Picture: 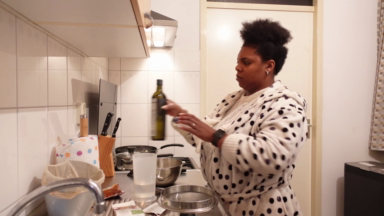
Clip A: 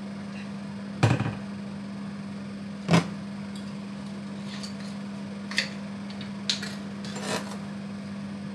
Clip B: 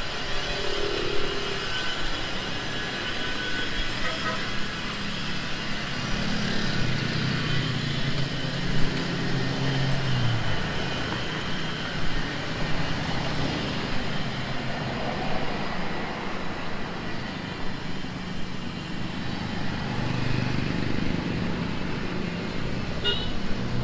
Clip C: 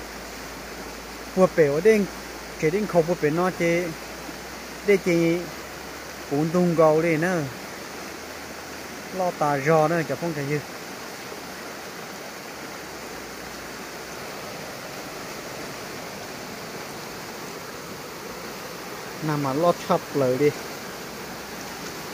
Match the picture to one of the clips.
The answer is A